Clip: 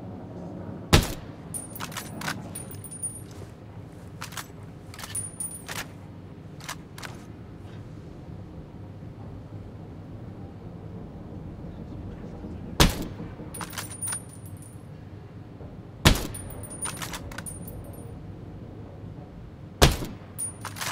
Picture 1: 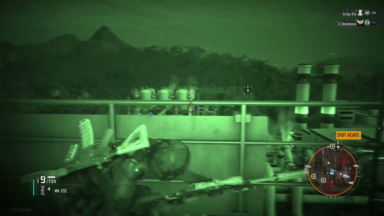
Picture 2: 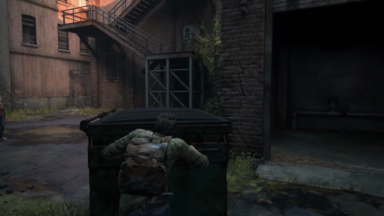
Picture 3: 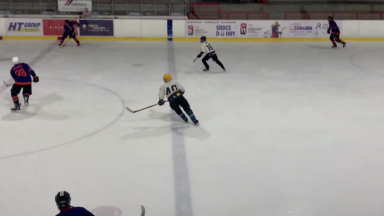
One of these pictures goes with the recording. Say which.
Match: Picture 1